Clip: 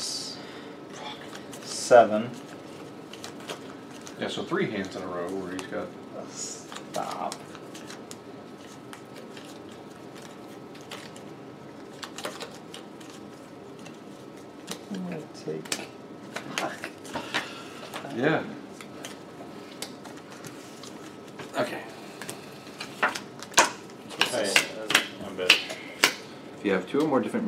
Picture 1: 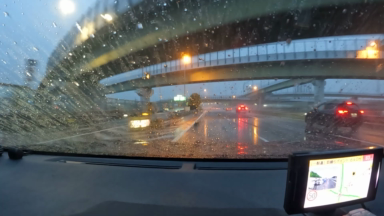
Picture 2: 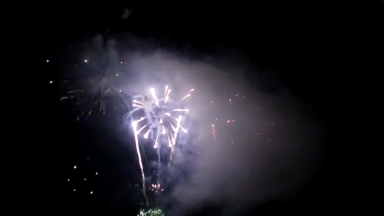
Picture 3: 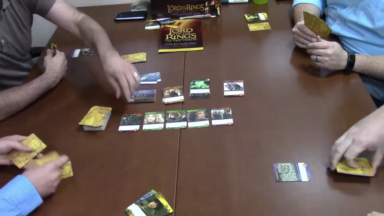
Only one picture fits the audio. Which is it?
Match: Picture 3